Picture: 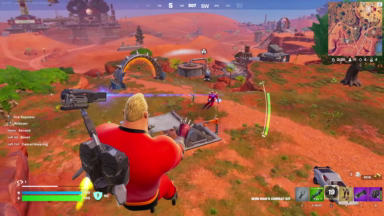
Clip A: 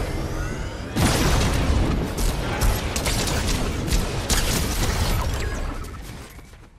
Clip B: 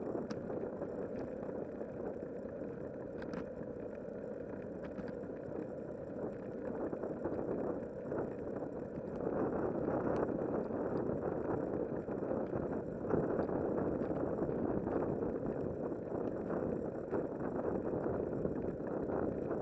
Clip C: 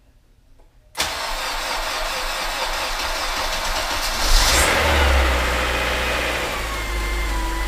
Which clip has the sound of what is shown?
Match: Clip A